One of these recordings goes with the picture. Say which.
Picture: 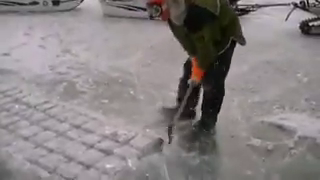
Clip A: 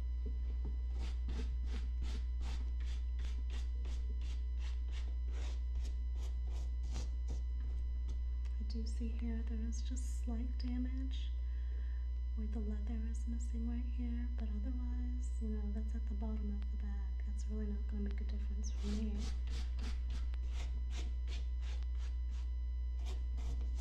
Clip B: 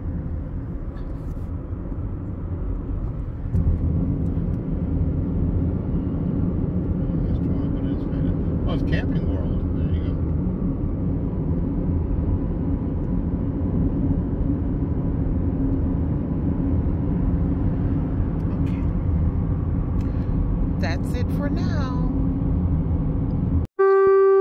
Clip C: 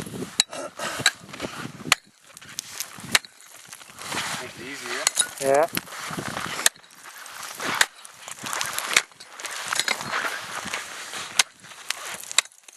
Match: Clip C